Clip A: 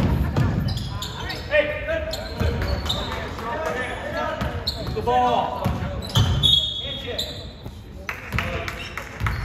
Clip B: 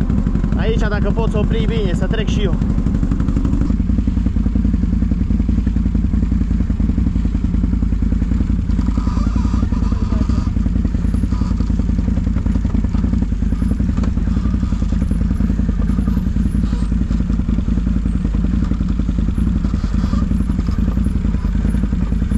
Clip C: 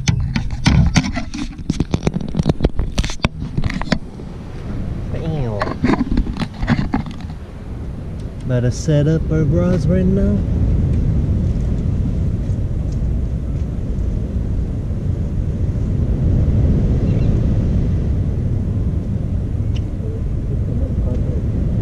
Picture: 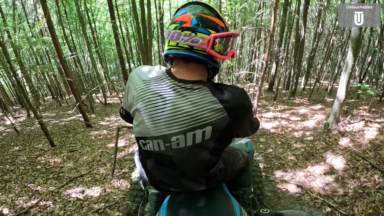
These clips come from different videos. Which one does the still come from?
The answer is B